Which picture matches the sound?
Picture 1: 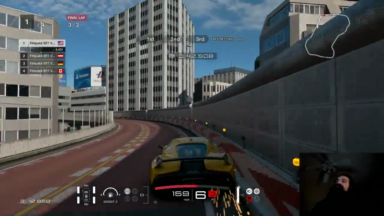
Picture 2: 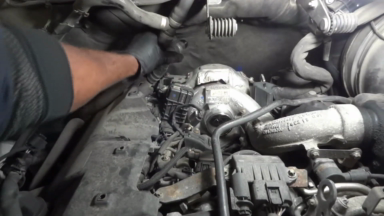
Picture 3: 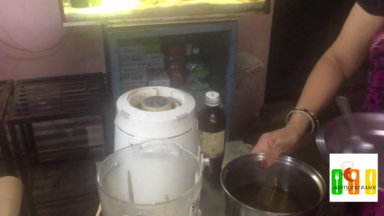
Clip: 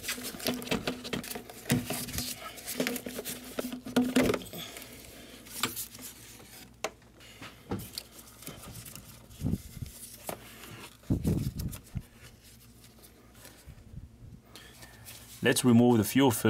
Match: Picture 2